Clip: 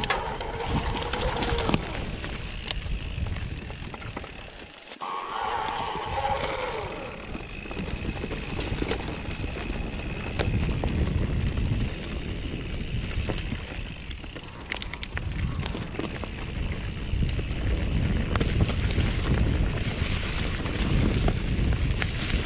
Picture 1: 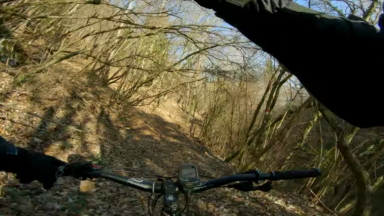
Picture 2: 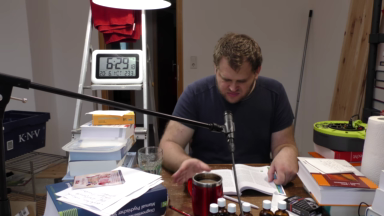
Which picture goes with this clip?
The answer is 1